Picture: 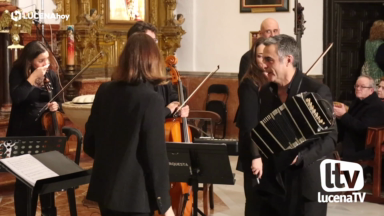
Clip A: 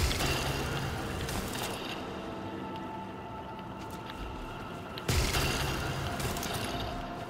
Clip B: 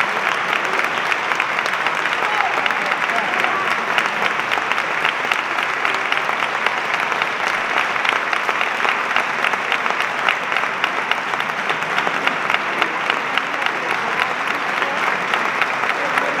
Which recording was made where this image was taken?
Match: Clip B